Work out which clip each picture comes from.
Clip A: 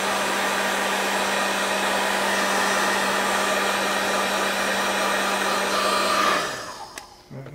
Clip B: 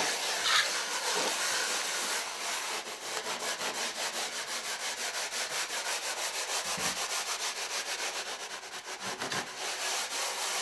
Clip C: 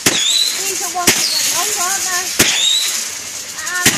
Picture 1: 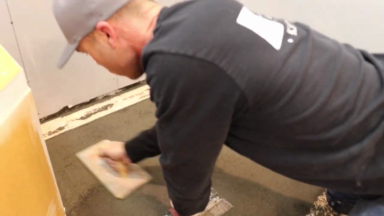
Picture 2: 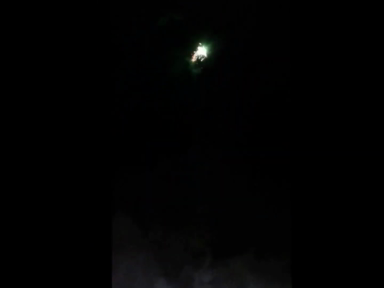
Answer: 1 B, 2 C